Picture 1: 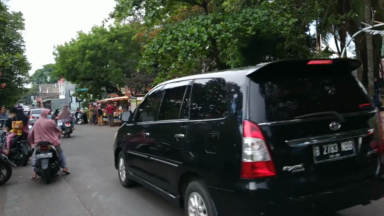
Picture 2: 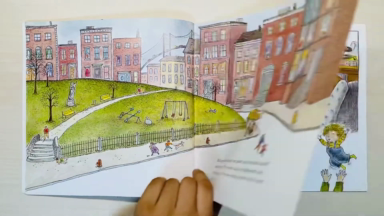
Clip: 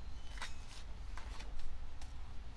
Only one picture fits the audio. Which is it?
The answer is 2